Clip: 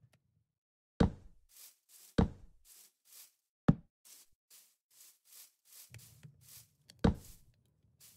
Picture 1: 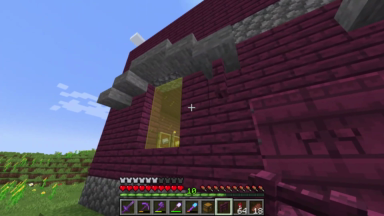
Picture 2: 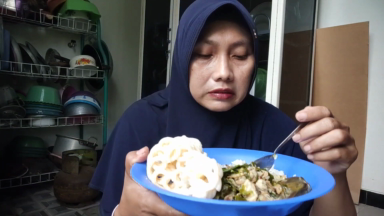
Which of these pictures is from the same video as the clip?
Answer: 1